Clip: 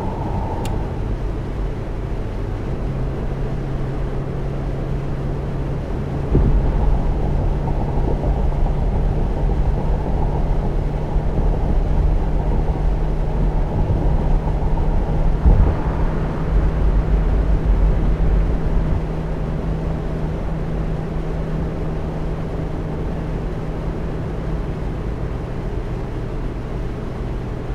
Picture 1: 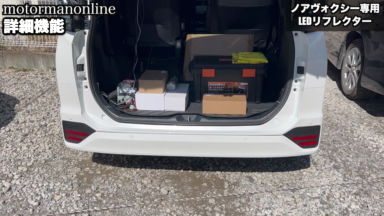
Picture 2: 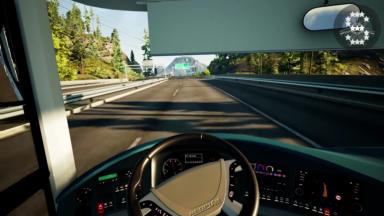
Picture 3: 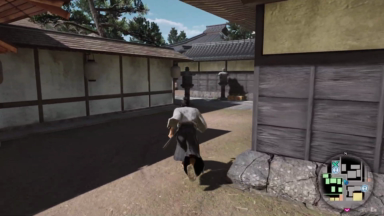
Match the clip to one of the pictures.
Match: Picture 2